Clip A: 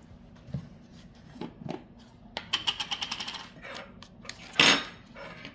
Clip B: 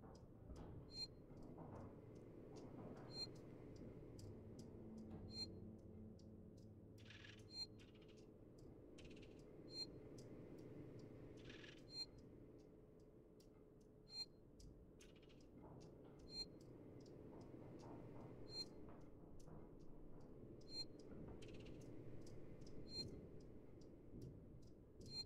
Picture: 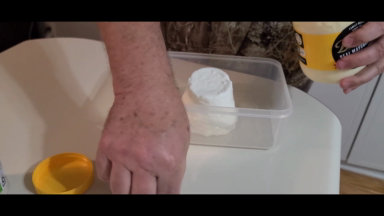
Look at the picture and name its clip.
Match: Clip A